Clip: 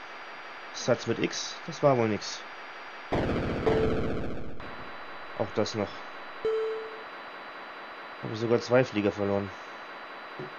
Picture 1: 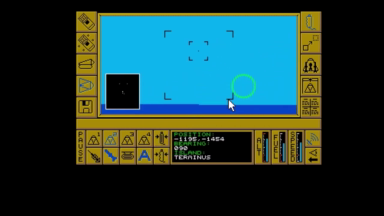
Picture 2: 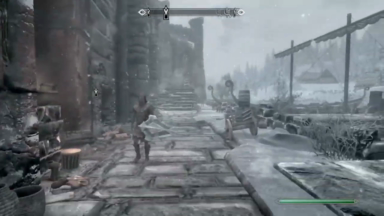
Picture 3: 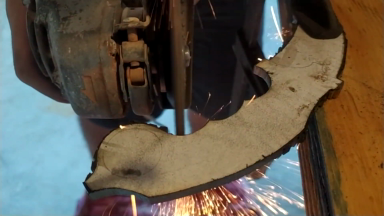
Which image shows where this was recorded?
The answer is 1